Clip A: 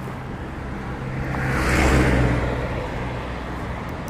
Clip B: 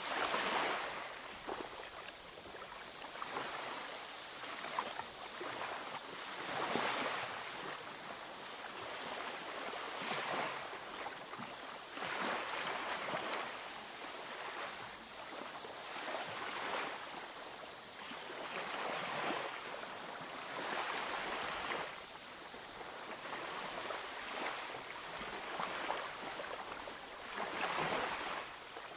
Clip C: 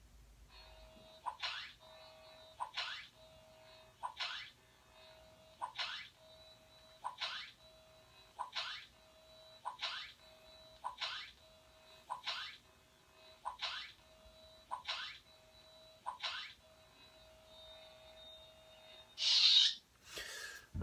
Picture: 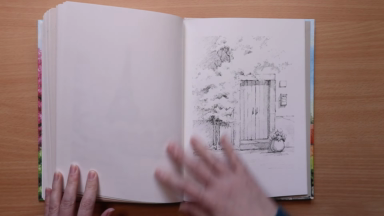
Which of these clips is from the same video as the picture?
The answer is B